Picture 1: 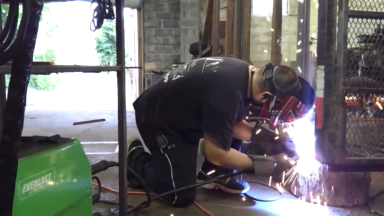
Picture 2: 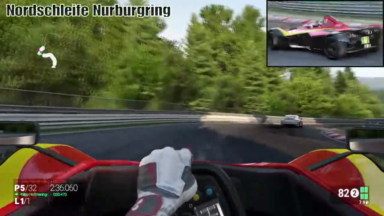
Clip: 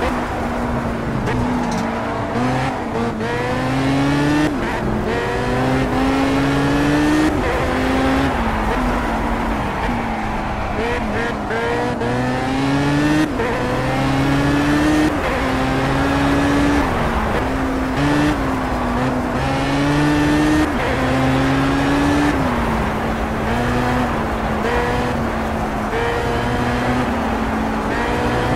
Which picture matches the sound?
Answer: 2